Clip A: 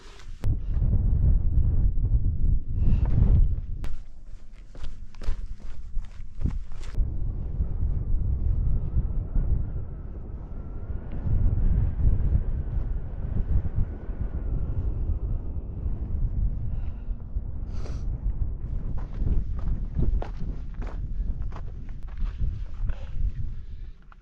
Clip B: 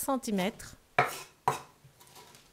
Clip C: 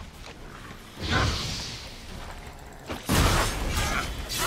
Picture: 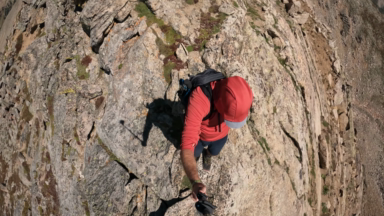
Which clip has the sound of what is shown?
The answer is A